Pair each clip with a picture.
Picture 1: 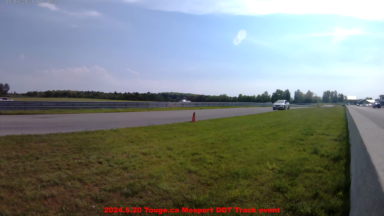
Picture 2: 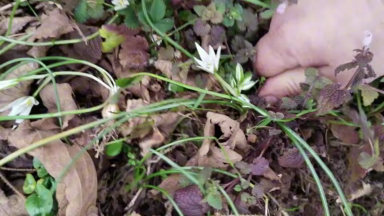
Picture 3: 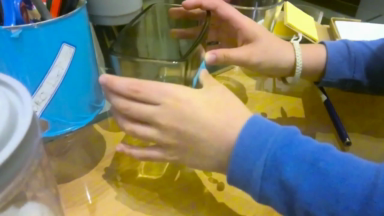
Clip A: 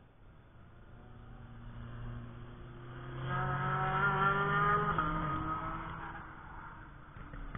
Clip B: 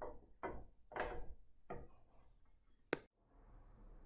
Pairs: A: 1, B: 3